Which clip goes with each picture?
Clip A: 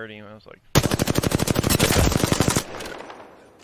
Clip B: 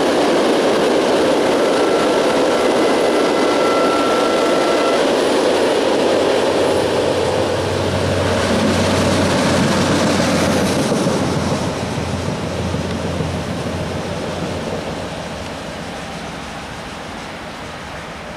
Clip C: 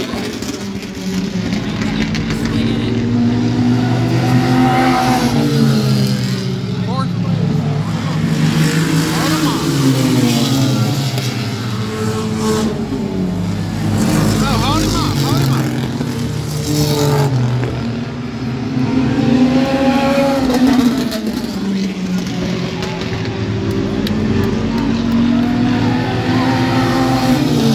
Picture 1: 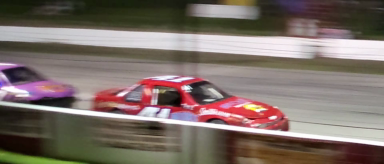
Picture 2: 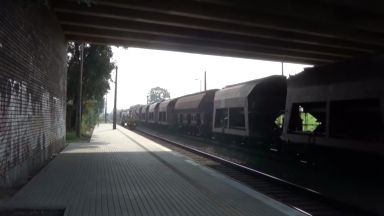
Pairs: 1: C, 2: B